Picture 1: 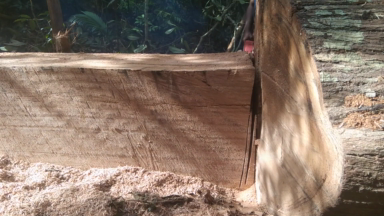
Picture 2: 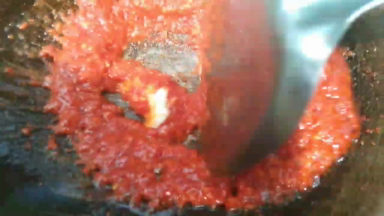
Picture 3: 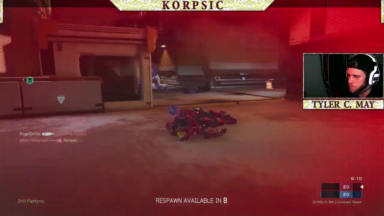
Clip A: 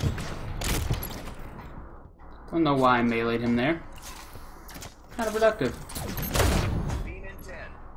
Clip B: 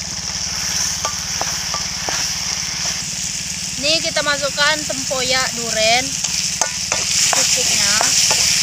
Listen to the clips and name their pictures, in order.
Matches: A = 3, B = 2